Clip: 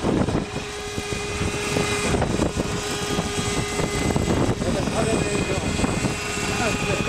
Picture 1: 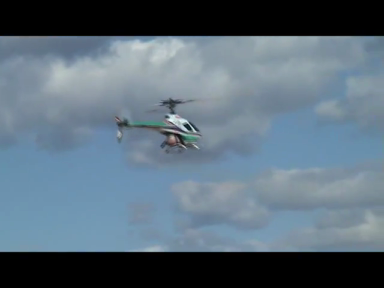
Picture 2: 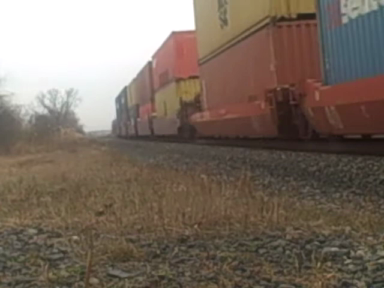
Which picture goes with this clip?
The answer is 1